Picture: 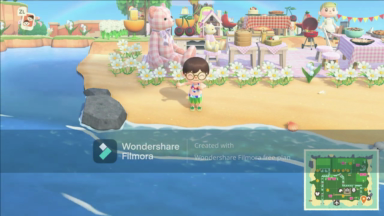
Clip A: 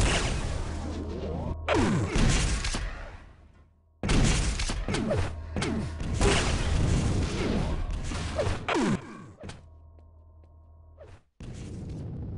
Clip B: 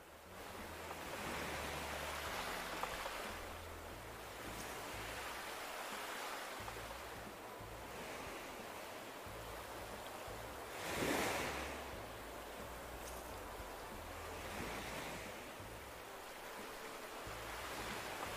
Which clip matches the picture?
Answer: B